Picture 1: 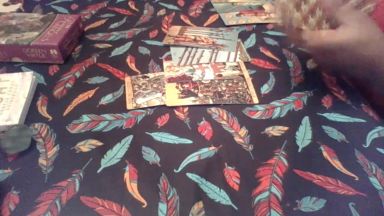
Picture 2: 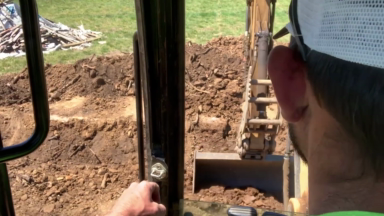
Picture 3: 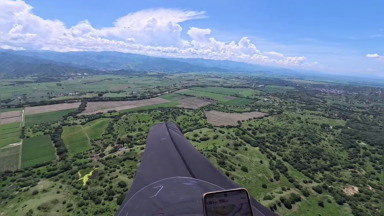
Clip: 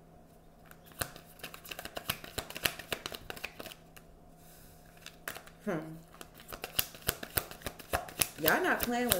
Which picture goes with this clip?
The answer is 1